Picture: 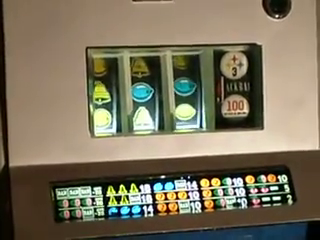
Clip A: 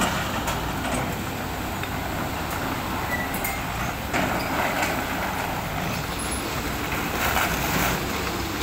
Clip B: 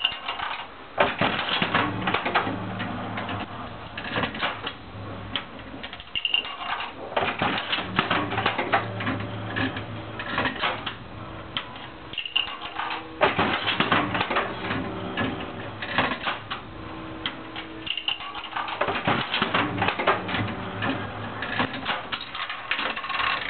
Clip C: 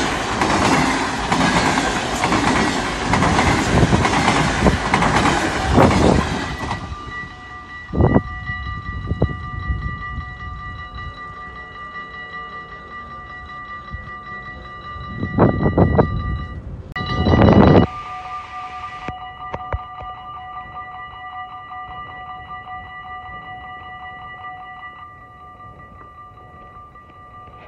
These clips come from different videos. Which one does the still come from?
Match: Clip B